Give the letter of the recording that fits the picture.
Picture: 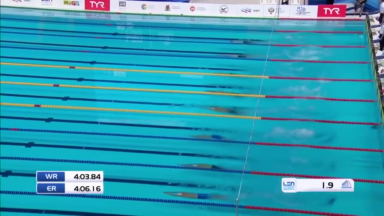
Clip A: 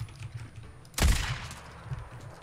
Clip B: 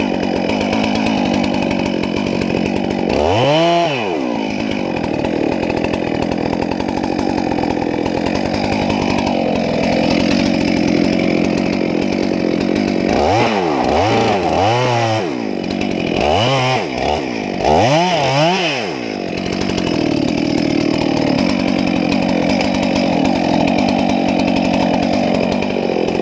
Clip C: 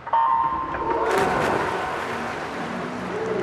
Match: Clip C